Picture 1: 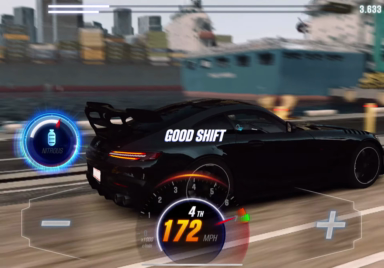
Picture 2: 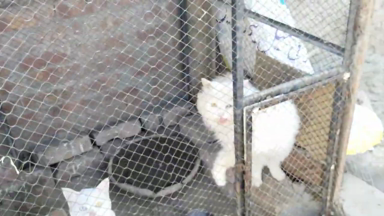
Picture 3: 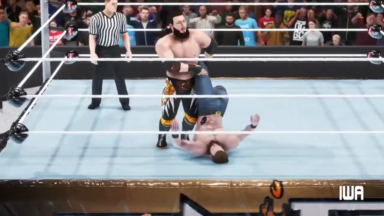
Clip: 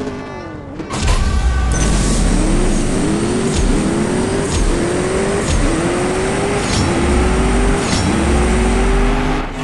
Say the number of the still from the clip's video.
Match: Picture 1